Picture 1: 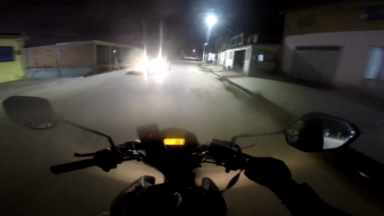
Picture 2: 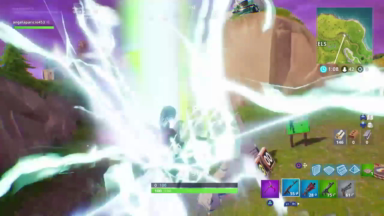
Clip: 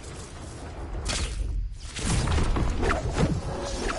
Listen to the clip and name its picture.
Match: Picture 2